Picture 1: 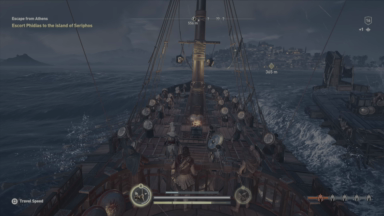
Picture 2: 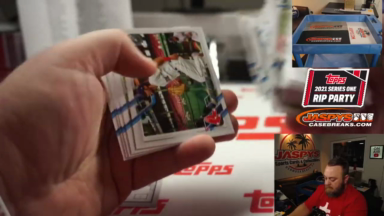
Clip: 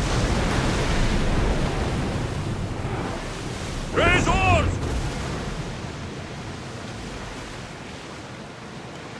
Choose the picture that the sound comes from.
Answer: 1